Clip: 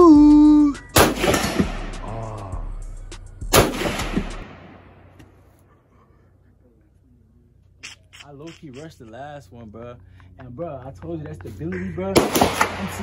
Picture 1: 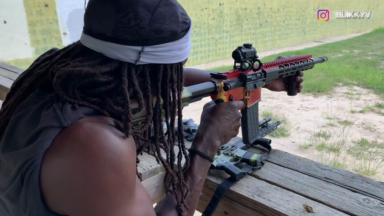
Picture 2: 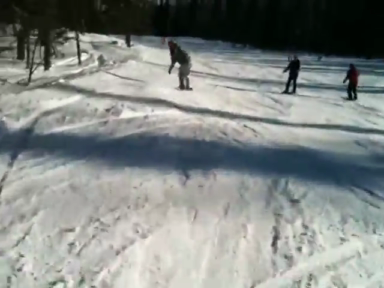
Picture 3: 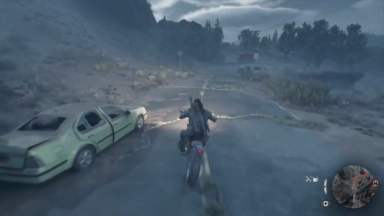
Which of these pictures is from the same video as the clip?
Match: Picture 1